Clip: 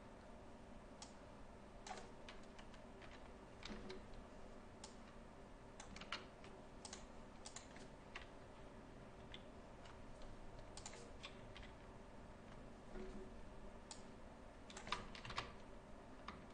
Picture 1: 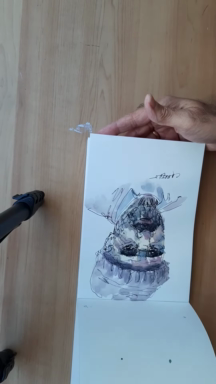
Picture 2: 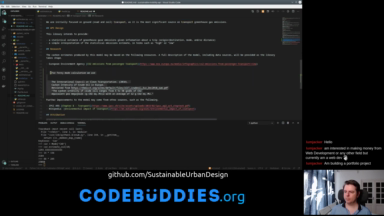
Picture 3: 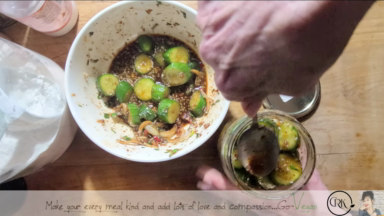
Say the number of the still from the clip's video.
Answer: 2